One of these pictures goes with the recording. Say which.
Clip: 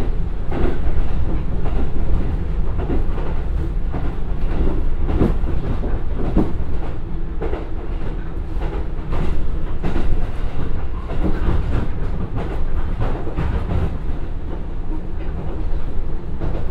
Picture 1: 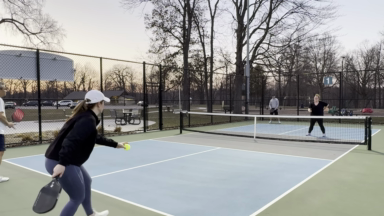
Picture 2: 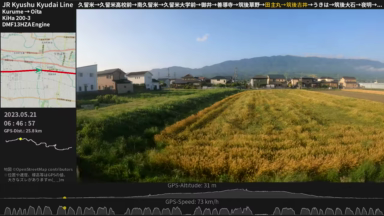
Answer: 2